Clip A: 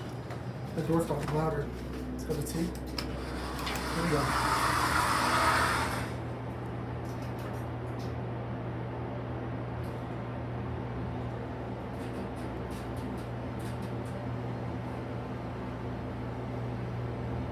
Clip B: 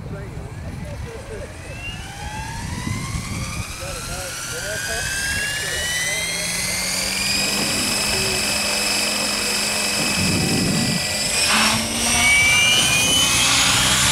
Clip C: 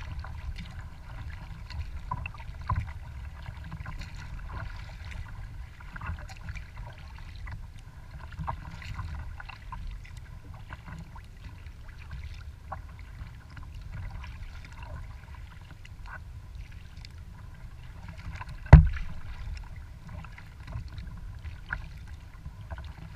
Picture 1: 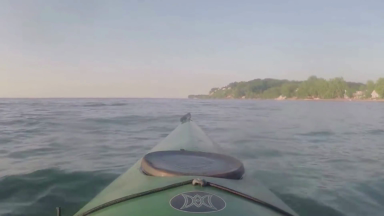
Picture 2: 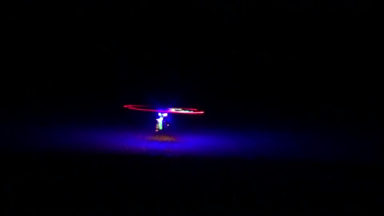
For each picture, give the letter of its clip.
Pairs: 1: C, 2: B